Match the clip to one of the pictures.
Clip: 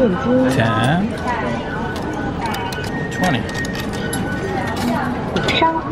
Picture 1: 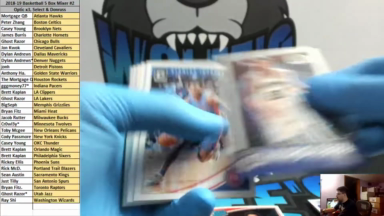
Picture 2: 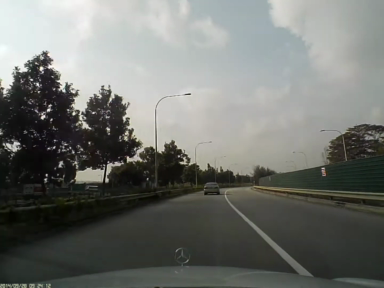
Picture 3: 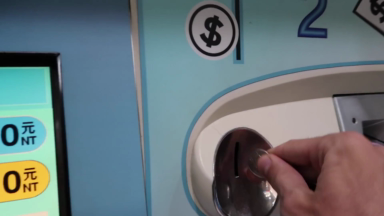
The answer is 3